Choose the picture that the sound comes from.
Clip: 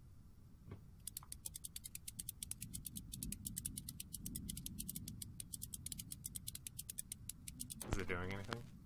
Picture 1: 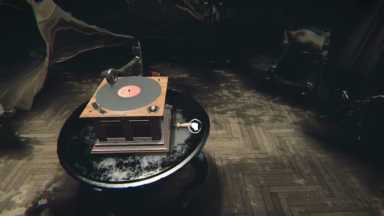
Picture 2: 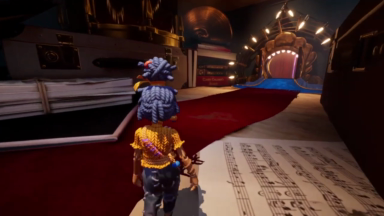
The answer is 1